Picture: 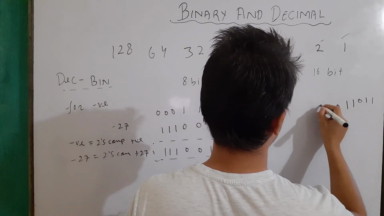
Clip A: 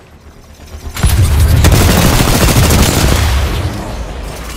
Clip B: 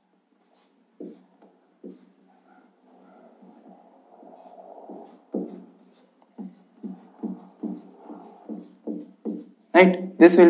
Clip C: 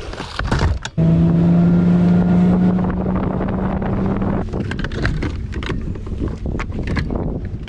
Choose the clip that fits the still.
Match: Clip B